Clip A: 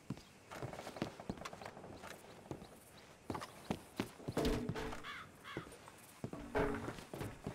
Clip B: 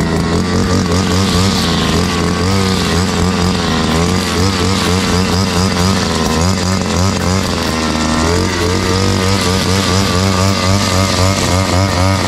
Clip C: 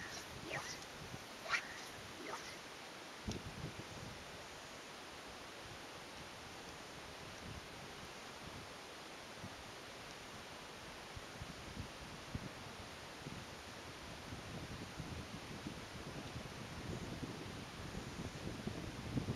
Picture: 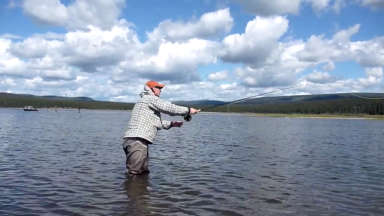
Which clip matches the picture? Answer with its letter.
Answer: C